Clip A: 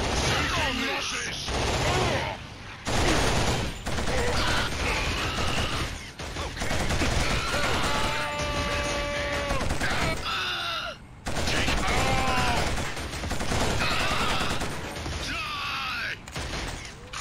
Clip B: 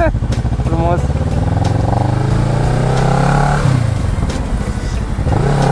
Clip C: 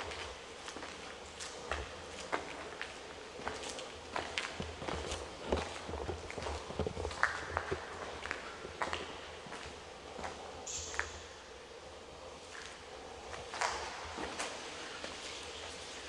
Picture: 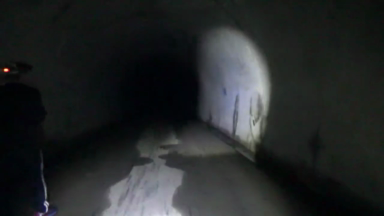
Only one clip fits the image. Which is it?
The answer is C